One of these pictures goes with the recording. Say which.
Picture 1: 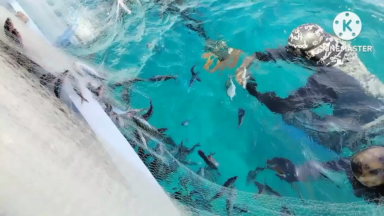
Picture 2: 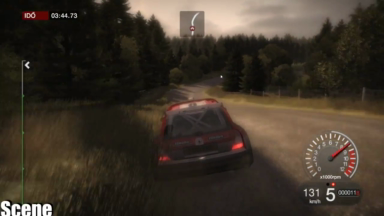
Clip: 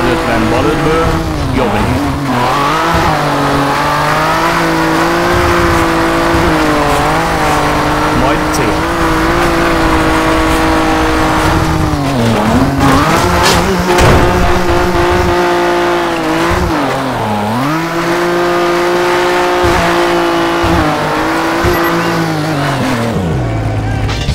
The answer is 2